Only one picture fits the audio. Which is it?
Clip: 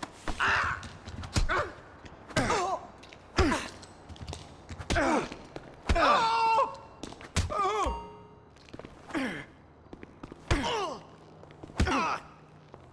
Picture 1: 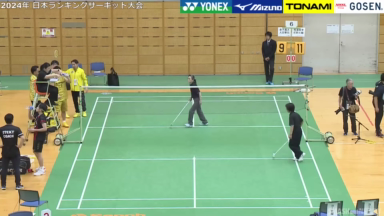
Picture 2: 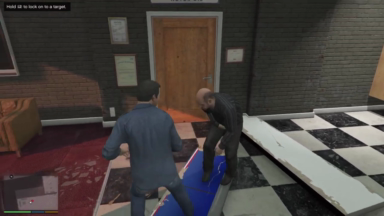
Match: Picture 2